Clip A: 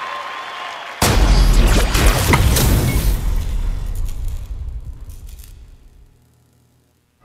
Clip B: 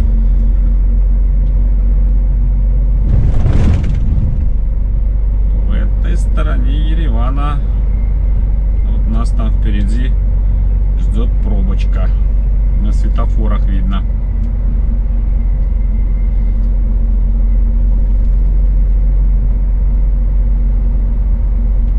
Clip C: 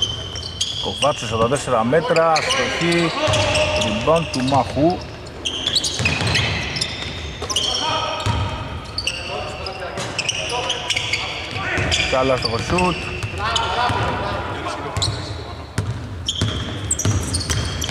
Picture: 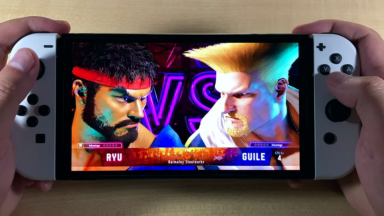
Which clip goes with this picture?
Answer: A